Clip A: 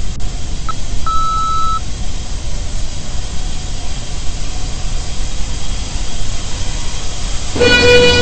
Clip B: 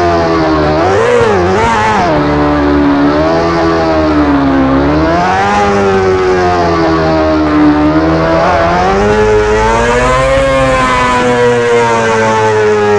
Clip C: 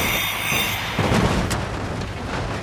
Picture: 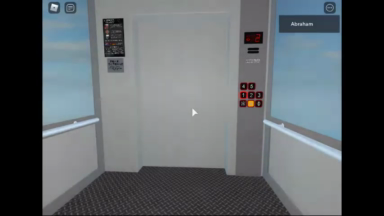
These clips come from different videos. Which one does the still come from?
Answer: A